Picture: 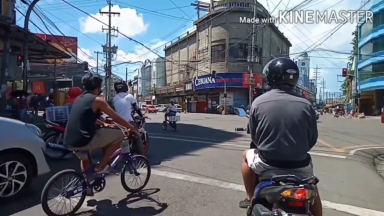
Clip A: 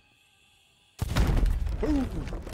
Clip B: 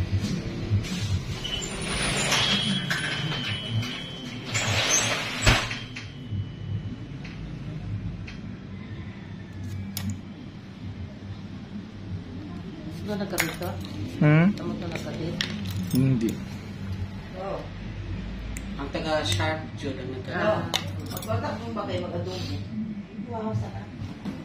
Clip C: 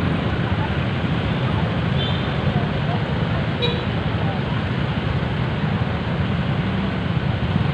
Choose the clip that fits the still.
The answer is C